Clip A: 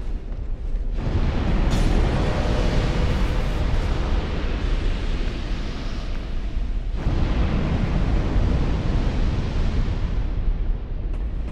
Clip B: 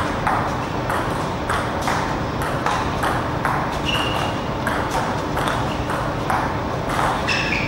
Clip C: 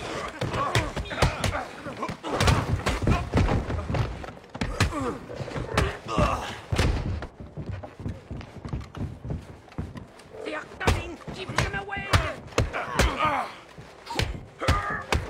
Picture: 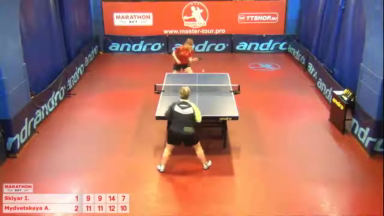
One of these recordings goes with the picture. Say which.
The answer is B